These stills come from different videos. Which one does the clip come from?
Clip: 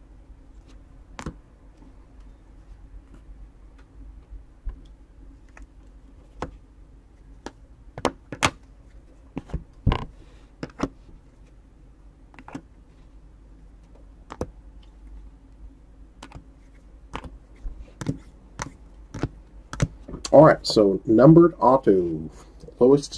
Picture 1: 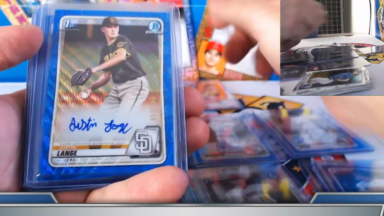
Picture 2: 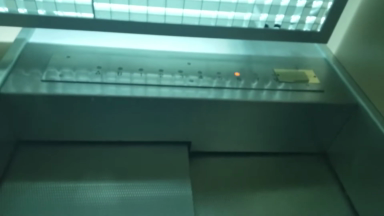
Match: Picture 1